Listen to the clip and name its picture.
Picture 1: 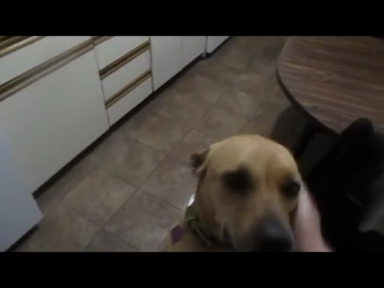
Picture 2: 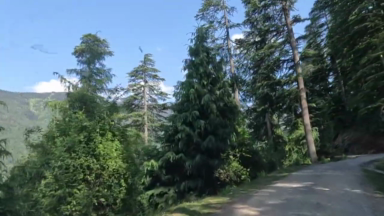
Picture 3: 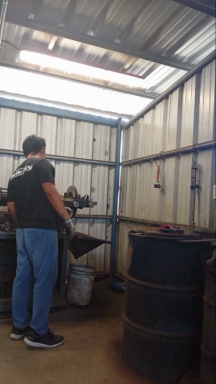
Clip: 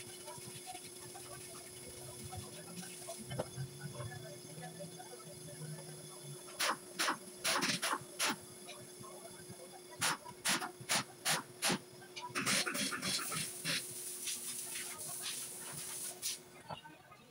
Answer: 3